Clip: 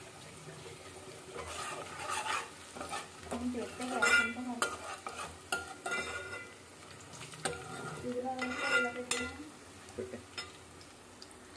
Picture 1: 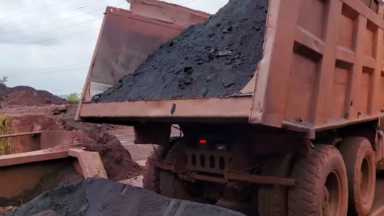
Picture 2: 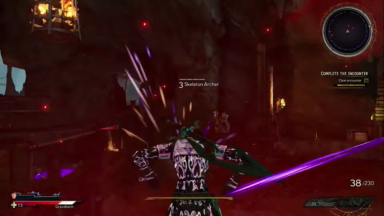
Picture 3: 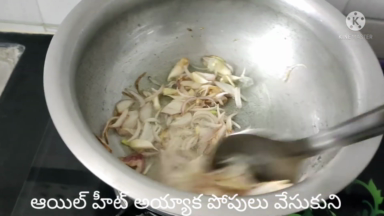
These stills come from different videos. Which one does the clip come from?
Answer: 3